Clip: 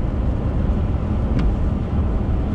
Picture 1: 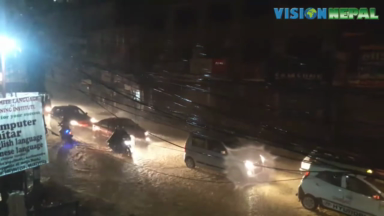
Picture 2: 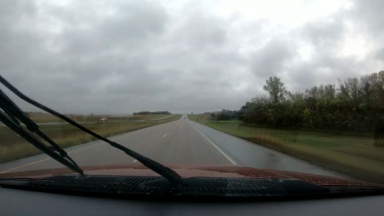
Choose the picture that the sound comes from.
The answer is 2